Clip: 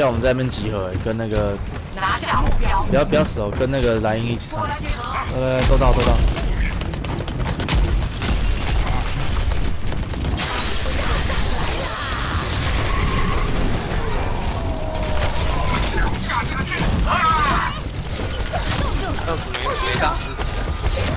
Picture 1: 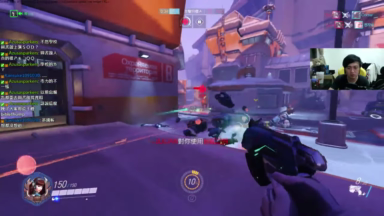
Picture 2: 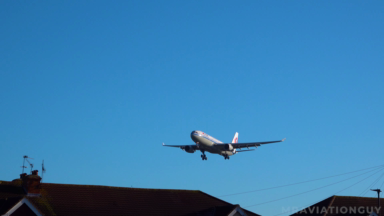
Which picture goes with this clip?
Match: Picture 1